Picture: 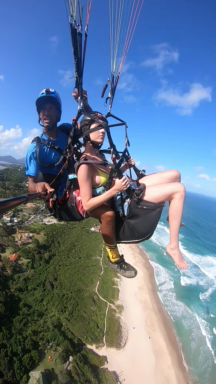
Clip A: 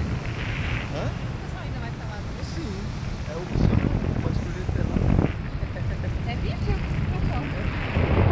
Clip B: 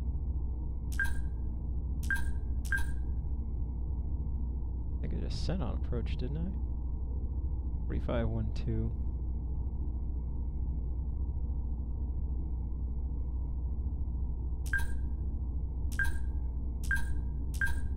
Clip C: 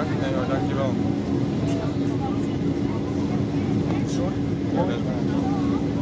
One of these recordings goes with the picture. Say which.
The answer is A